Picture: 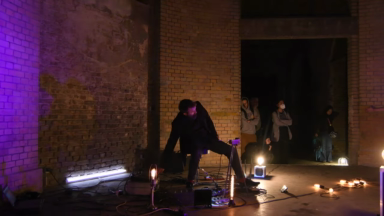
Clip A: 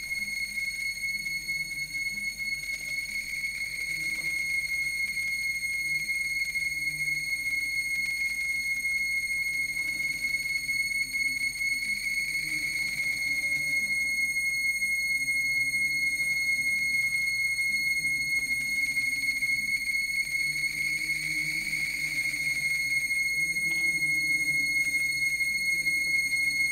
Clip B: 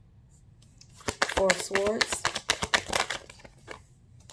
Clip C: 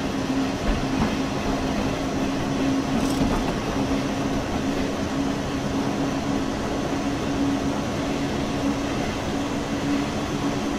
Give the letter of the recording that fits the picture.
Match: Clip A